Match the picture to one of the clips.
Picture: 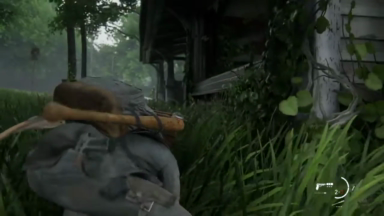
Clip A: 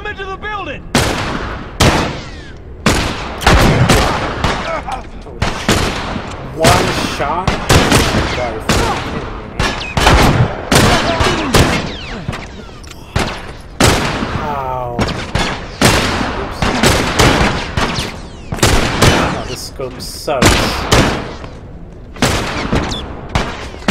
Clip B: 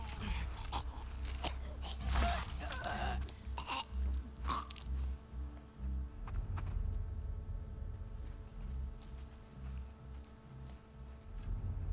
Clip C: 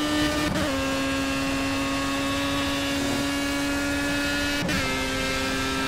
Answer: B